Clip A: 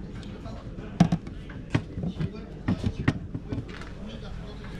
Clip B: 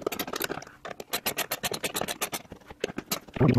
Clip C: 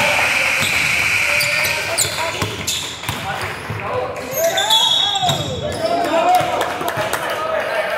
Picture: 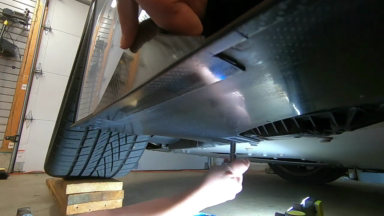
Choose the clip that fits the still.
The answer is B